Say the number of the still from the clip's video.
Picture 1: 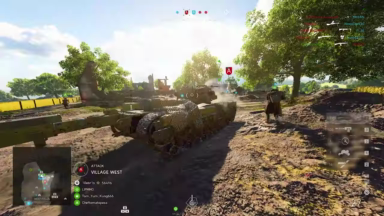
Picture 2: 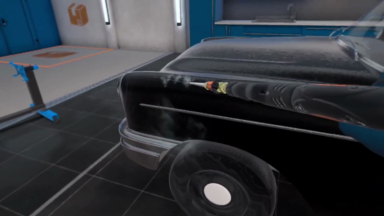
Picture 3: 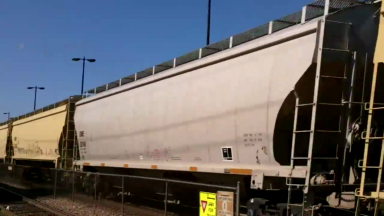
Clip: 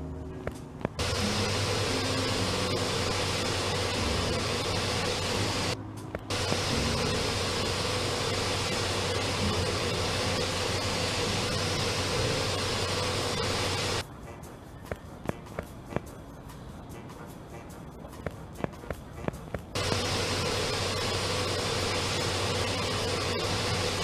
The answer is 2